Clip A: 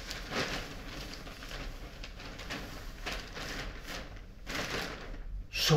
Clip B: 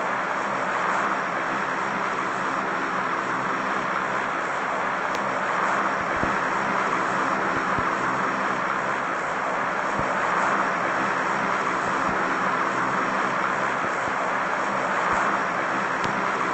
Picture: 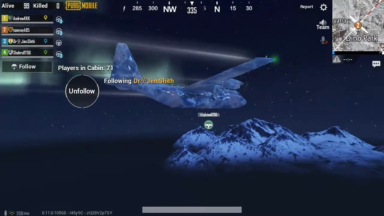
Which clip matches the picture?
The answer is B